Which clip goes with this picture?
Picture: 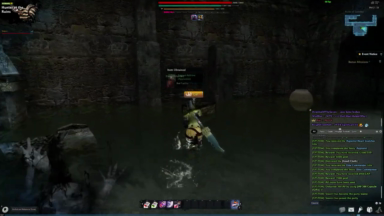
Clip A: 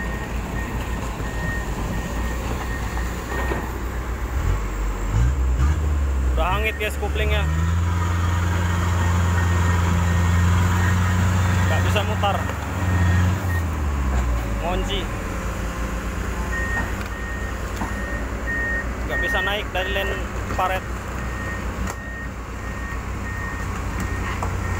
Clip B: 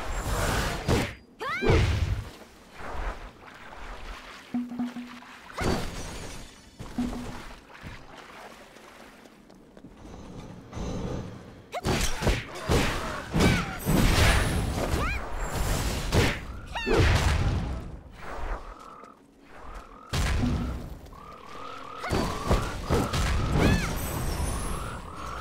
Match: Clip B